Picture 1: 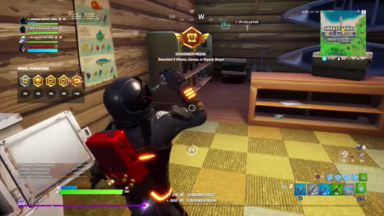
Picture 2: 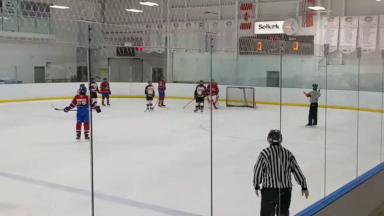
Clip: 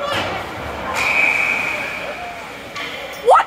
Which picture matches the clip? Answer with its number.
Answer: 2